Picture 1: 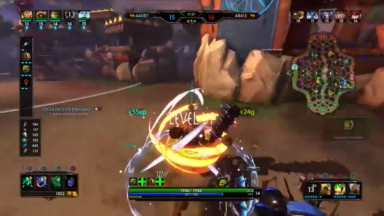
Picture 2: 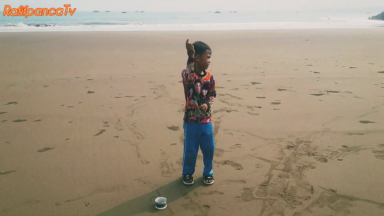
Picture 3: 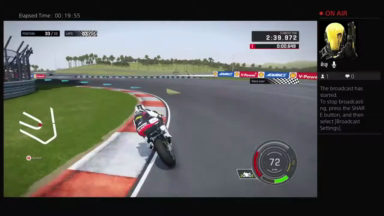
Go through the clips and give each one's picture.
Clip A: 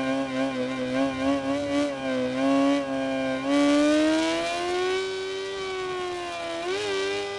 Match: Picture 3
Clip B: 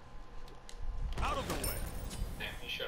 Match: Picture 1